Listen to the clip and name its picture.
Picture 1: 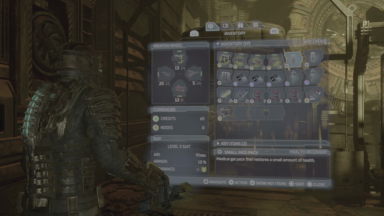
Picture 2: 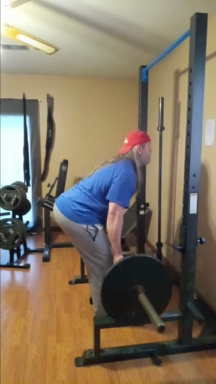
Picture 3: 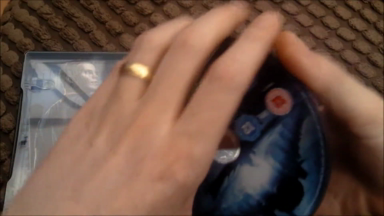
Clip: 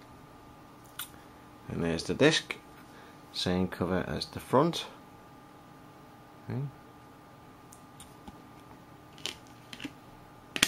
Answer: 3